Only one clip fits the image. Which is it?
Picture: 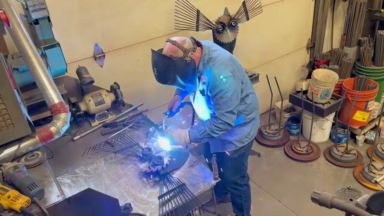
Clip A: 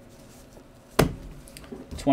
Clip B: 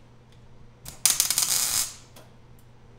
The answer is B